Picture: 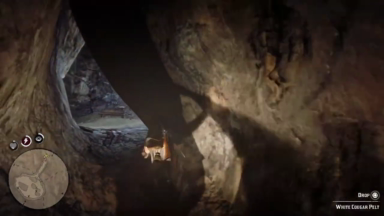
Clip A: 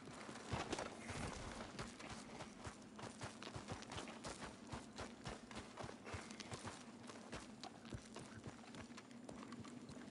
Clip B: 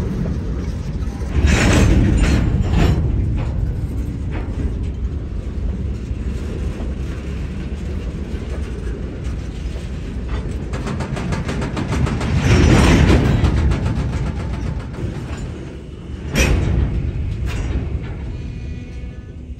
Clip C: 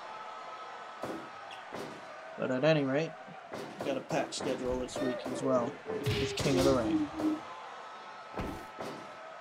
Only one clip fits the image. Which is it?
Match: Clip A